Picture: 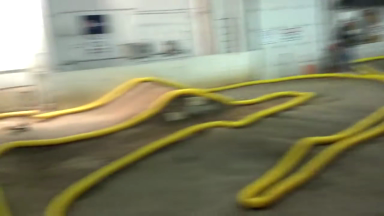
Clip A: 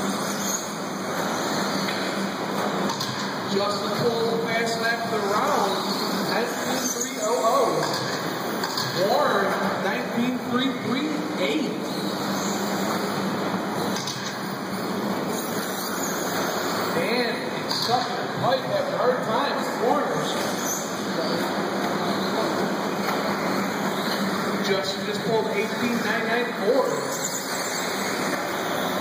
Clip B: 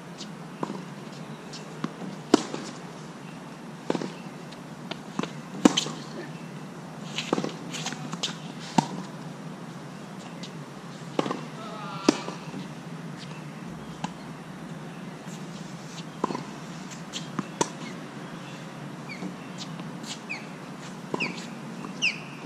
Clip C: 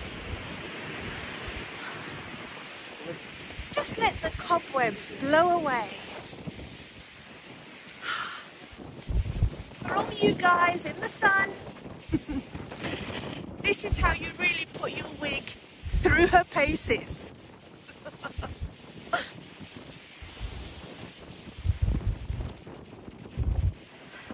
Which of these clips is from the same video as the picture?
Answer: A